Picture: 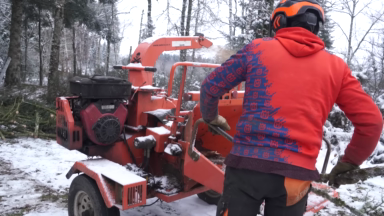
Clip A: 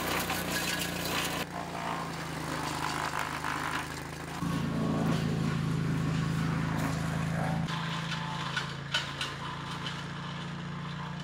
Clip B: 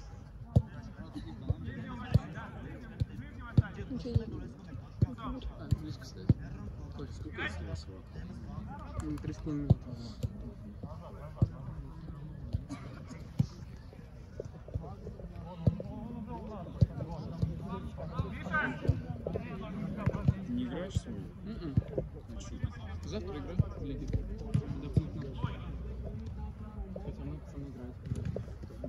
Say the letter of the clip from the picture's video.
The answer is A